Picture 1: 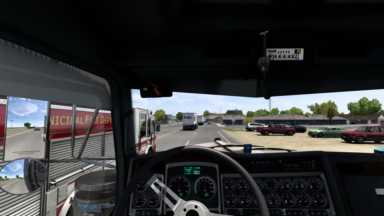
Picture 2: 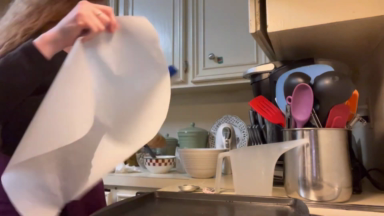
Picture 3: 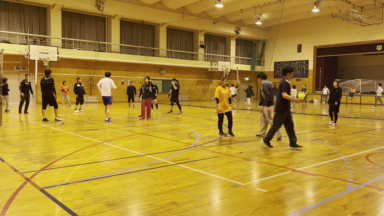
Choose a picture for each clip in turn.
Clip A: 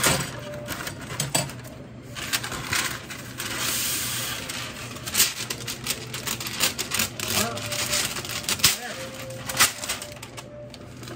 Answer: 2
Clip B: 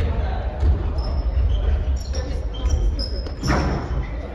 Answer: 3